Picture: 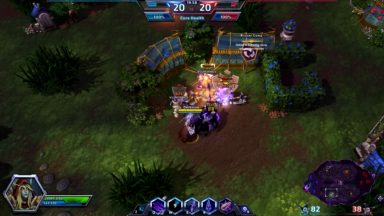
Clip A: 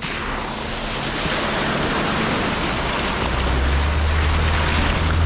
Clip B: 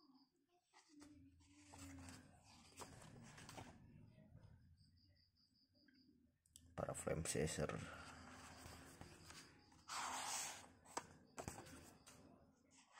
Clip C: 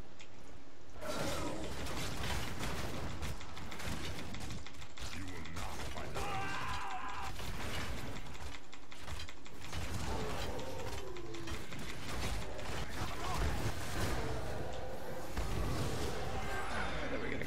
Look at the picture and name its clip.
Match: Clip C